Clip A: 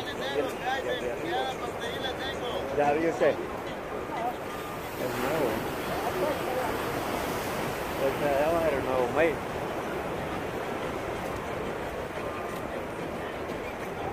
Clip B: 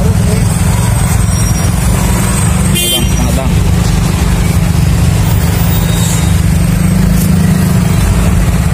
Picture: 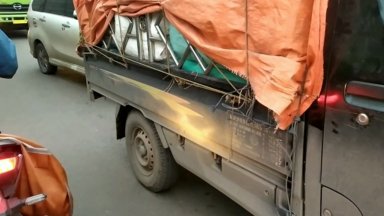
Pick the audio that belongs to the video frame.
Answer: B